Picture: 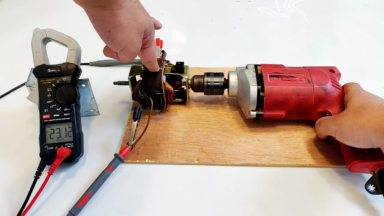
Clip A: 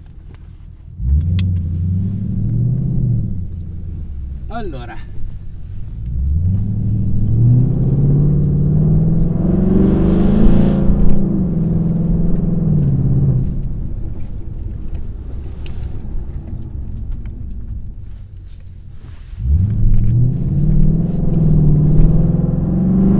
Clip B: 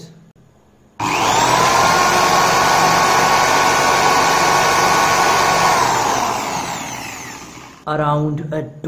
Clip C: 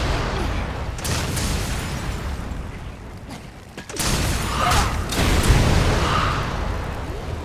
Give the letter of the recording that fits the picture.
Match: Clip B